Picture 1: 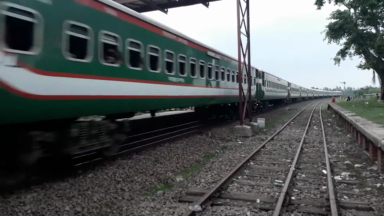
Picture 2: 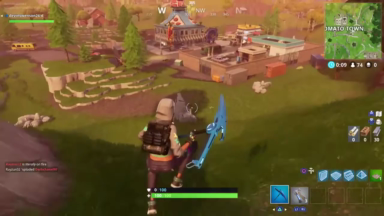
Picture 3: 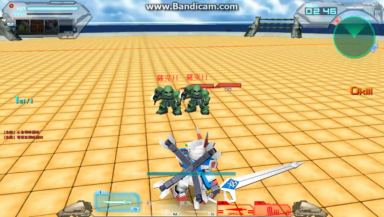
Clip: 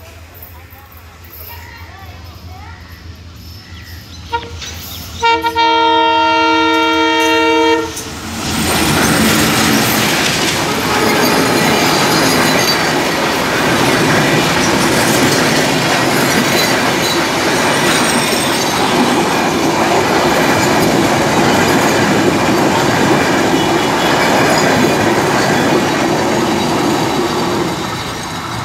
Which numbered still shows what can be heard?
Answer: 1